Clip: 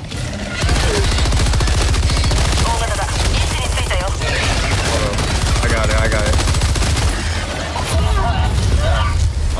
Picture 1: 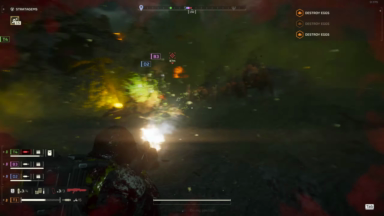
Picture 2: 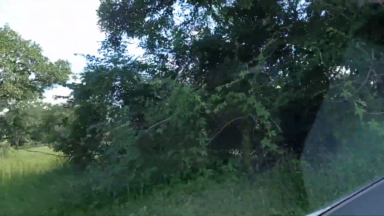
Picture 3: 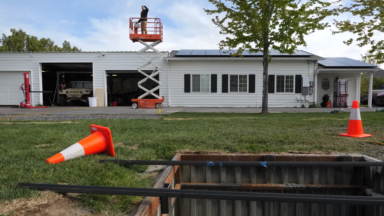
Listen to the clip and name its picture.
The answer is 1